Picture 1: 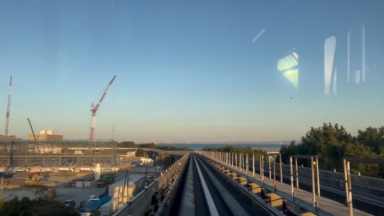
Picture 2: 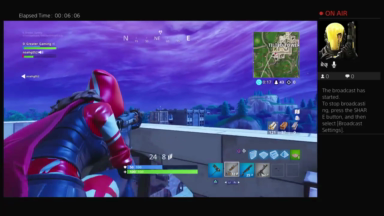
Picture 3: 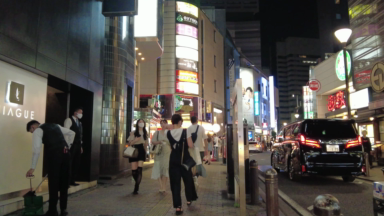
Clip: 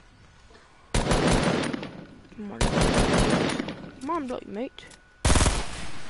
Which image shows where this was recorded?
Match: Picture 2